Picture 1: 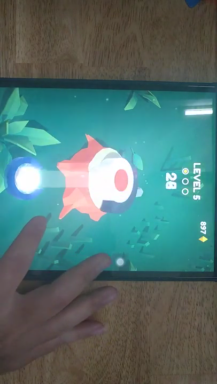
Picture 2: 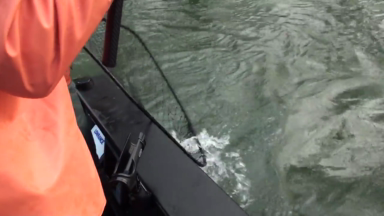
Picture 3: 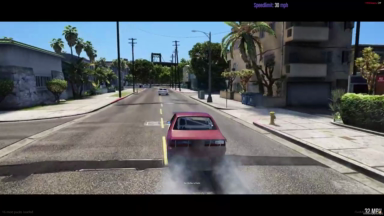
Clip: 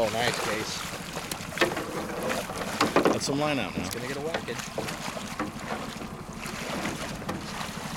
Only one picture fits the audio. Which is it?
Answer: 2